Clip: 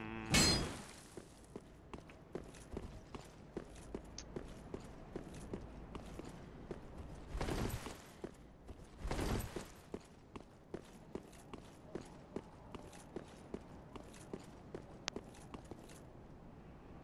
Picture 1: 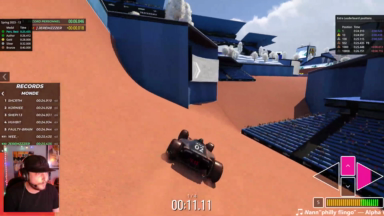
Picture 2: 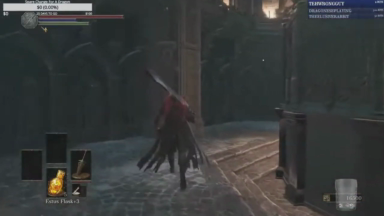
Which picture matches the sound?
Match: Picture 2